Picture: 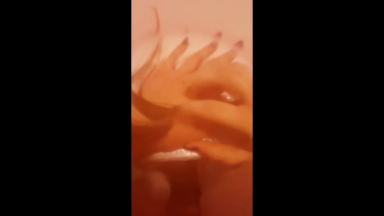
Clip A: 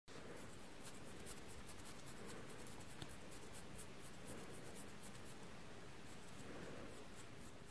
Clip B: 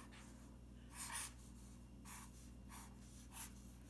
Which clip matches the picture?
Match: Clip A